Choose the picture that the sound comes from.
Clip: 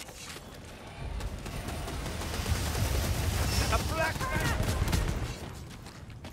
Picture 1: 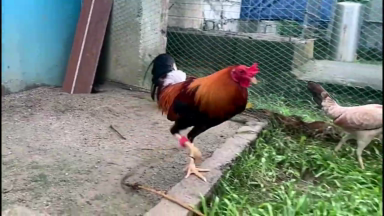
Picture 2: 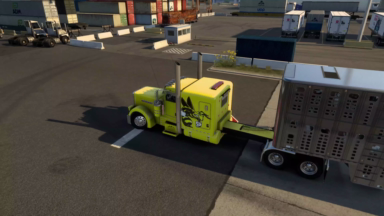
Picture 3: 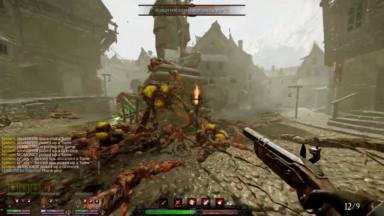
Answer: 3